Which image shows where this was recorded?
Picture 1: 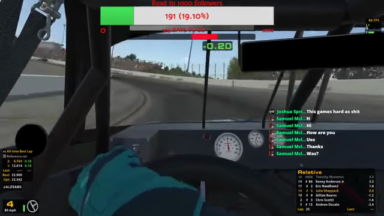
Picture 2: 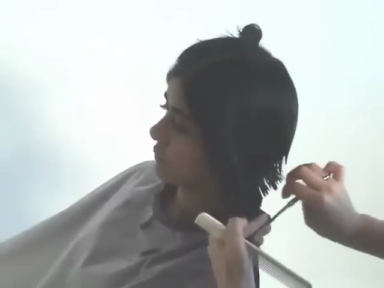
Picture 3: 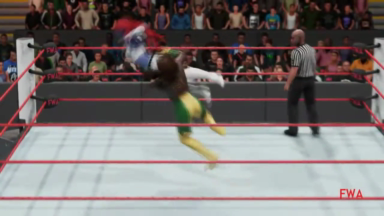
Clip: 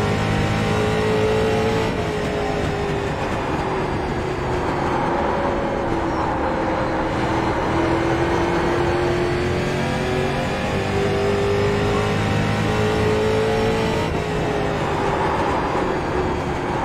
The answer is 1